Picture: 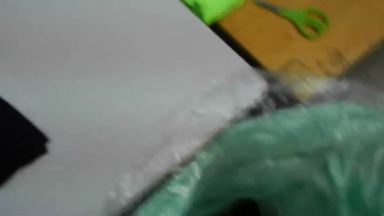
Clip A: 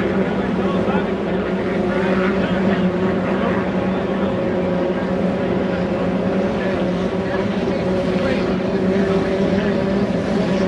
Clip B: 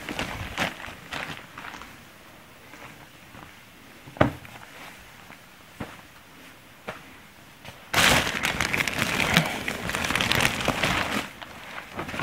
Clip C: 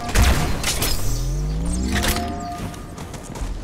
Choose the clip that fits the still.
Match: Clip B